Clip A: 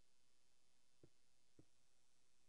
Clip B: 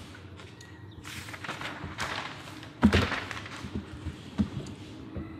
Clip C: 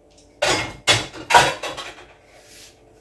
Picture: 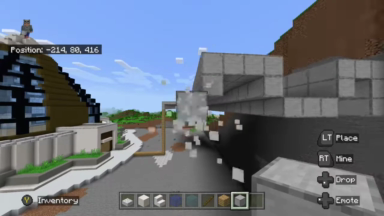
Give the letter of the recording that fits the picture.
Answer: A